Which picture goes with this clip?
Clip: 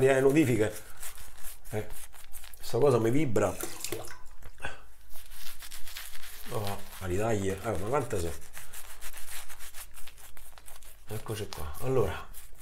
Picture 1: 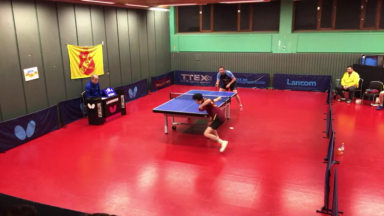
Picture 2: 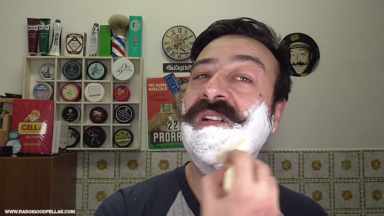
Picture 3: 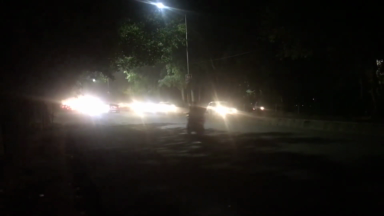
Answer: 2